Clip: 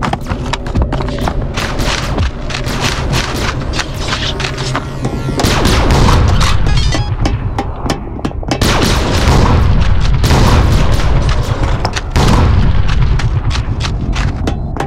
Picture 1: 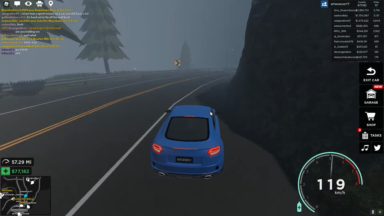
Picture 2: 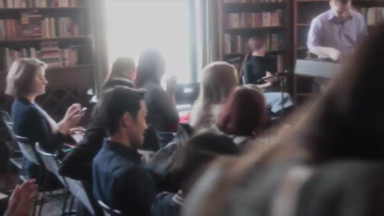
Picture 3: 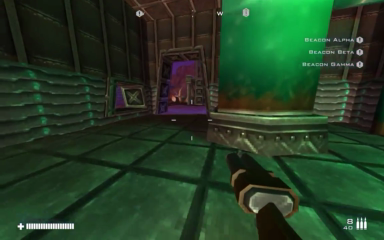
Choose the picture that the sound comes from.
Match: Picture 3